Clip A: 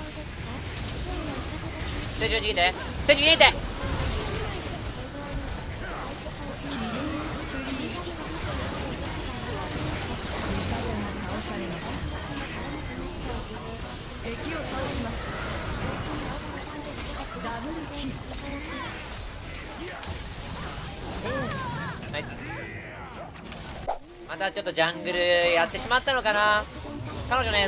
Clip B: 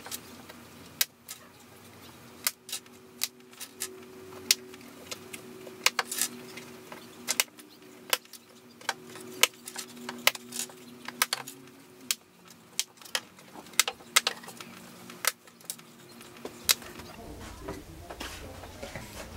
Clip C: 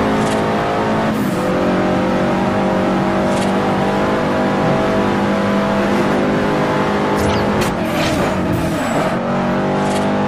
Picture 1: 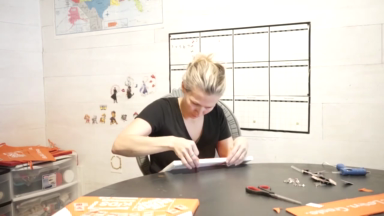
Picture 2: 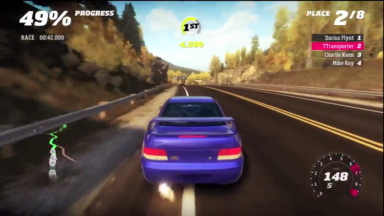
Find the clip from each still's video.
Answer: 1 B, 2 C